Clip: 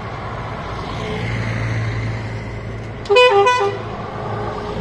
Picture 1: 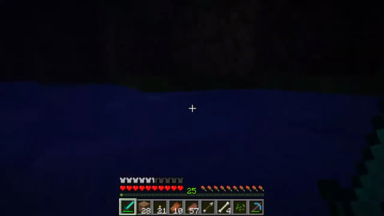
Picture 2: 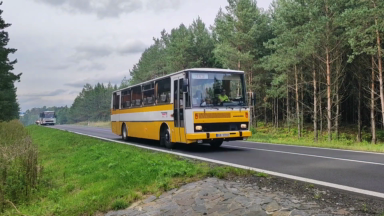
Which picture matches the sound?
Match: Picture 2